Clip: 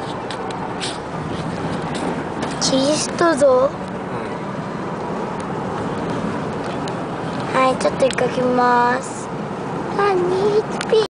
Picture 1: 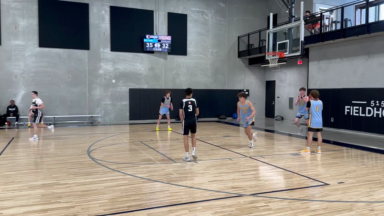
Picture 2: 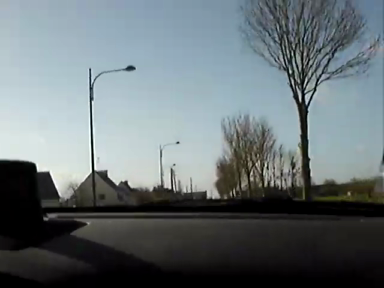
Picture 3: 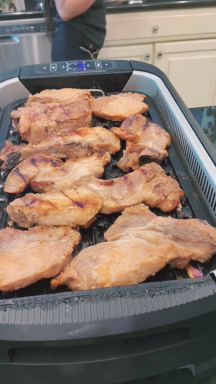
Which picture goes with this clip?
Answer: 2